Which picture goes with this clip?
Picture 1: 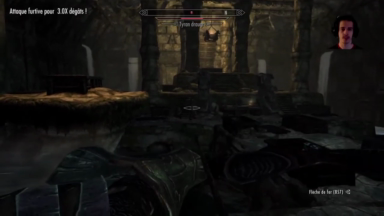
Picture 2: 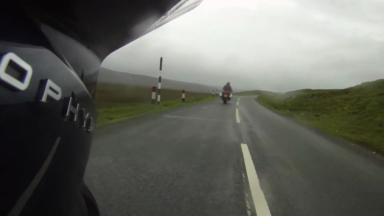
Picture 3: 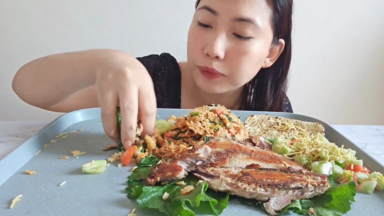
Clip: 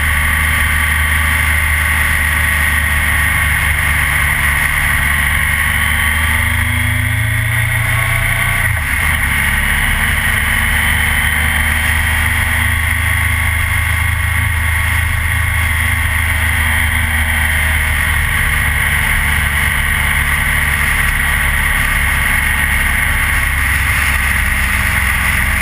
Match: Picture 2